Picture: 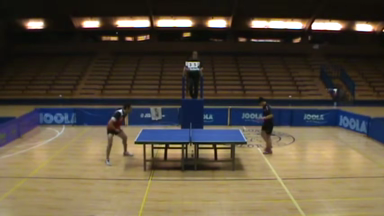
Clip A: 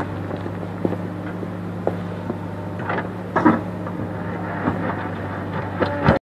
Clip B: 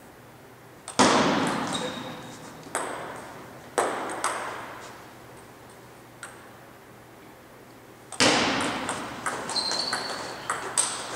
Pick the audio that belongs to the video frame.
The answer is B